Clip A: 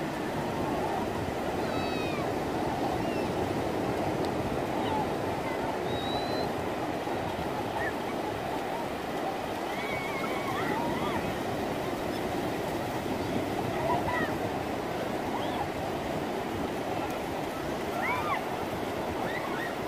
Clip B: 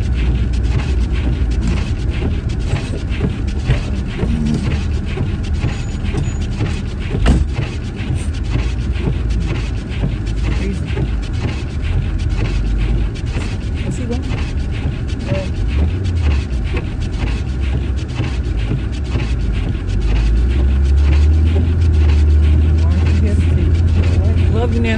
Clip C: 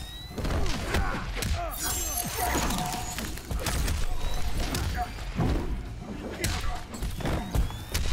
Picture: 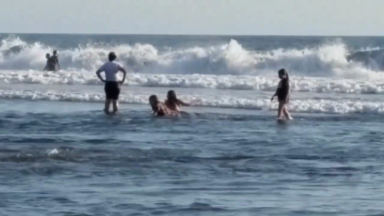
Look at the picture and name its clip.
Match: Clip A